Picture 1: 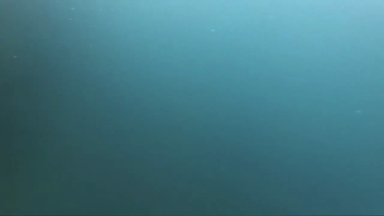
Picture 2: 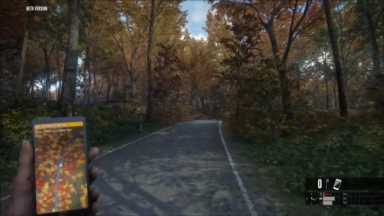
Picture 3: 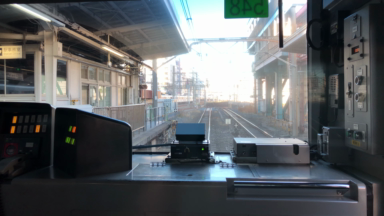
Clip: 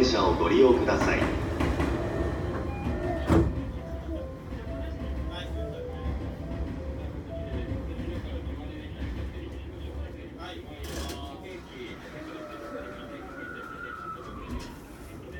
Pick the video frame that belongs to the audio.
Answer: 3